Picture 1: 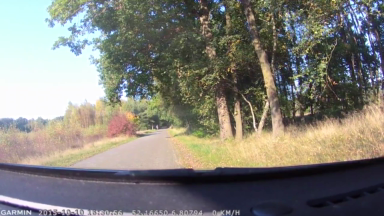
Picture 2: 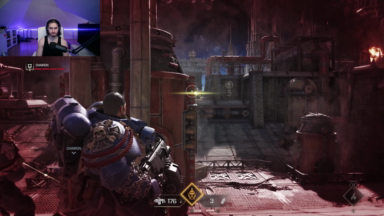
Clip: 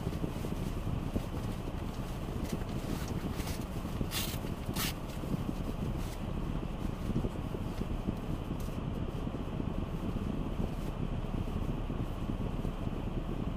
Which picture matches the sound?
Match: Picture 1